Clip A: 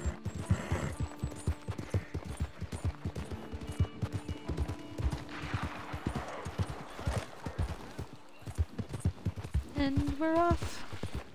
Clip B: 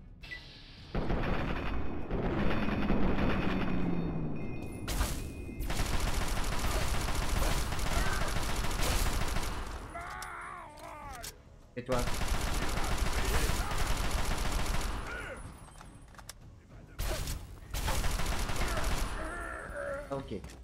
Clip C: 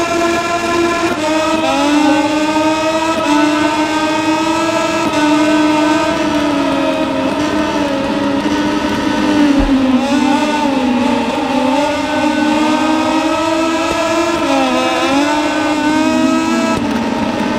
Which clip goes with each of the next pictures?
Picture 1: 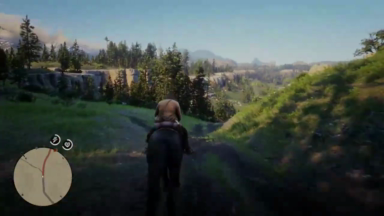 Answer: A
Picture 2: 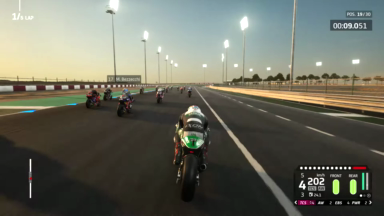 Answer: C